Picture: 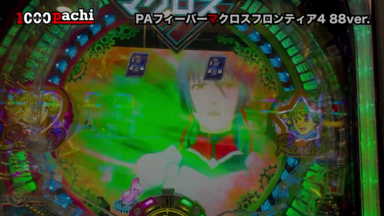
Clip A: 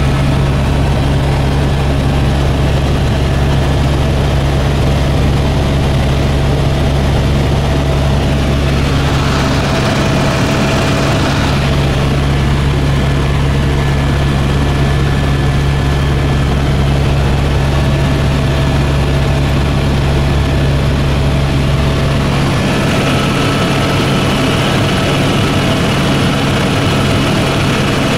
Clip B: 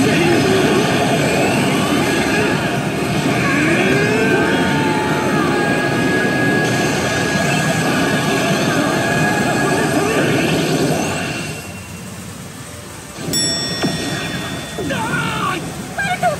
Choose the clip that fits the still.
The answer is B